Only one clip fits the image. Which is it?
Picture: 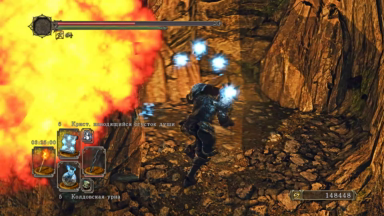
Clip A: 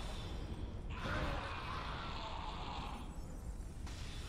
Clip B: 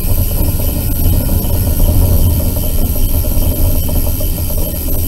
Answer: A